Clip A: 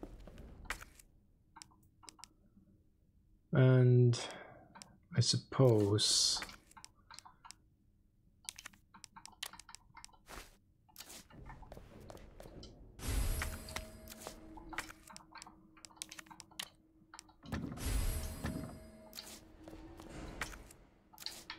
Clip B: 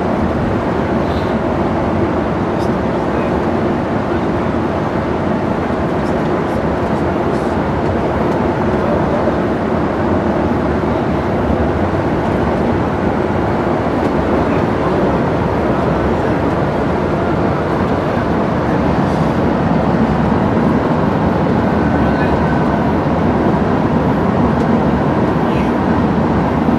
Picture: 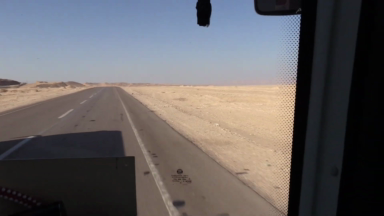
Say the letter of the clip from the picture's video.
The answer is B